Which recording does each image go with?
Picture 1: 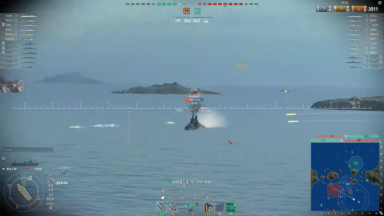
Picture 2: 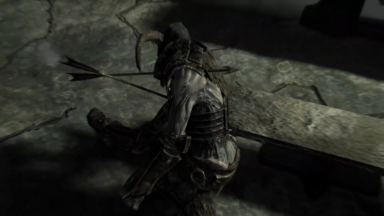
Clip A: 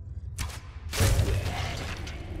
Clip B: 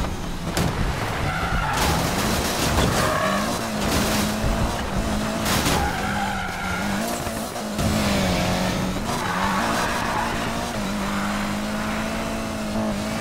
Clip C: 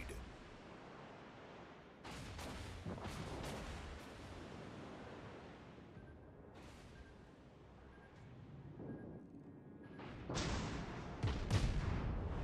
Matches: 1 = C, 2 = A